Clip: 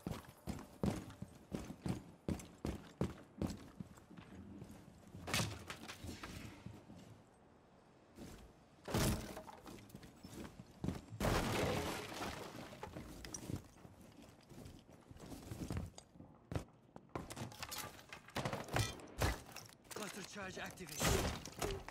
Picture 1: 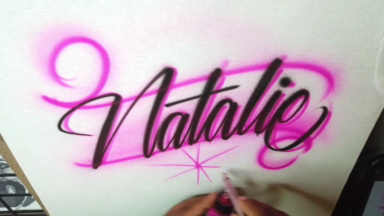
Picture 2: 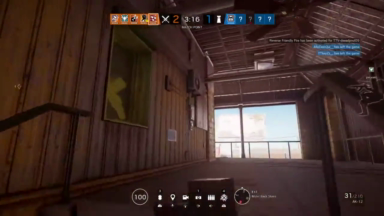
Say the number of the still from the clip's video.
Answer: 2